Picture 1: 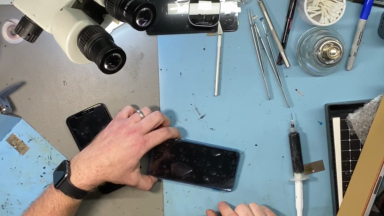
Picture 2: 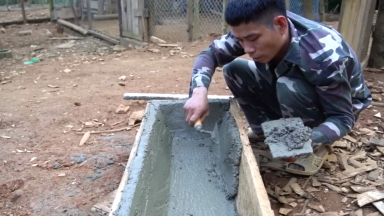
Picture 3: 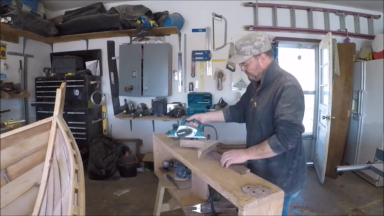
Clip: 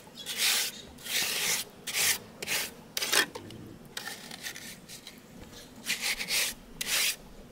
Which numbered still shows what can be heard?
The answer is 2